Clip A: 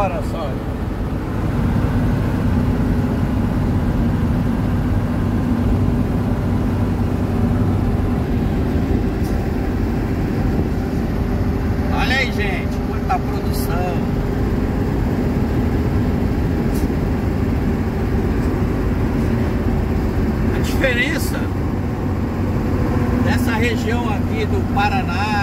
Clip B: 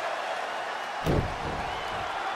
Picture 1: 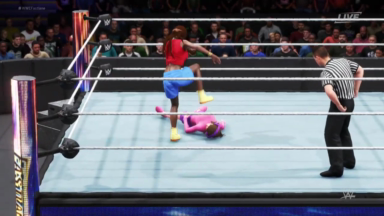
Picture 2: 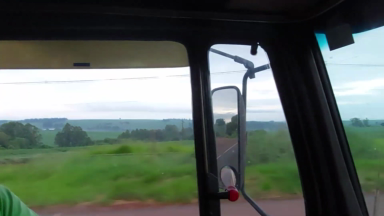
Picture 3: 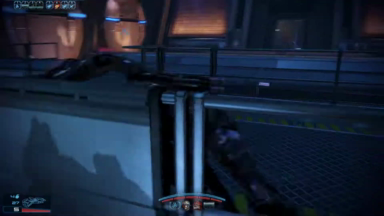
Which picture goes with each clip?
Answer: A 2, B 1